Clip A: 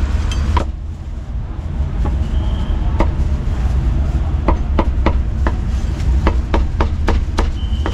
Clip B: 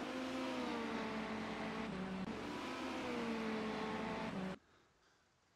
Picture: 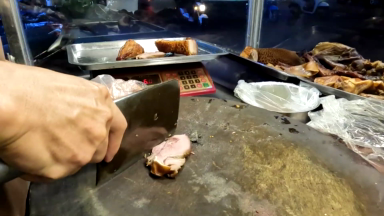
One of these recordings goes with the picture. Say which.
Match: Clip A